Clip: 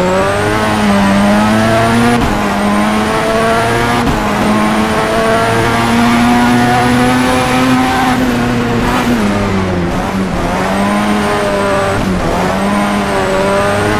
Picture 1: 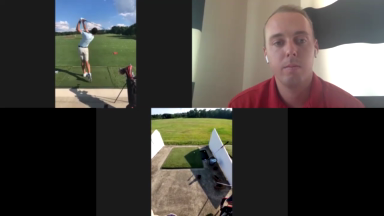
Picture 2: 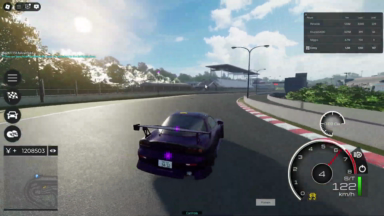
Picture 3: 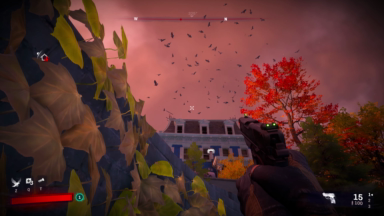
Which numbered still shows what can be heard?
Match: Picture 2